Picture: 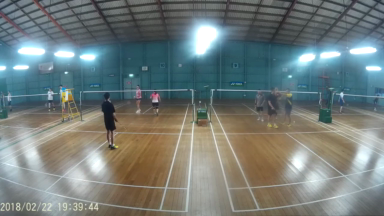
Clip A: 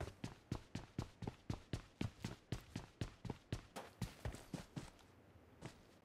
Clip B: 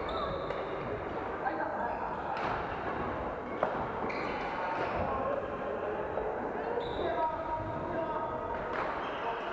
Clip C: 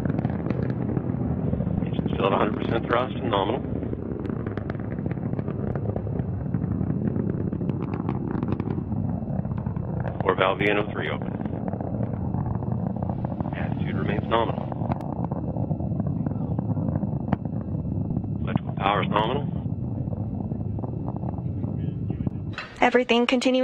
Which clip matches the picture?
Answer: B